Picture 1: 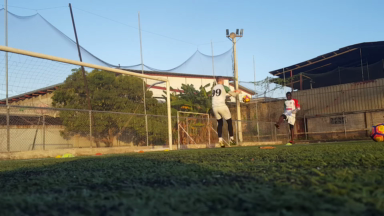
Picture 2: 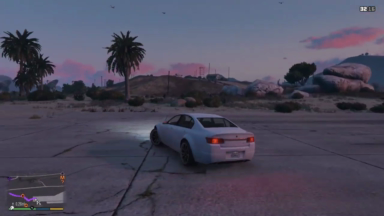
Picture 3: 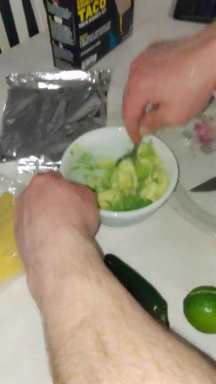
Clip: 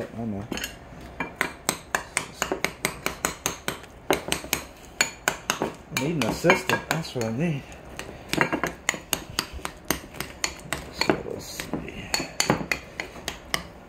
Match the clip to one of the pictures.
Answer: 3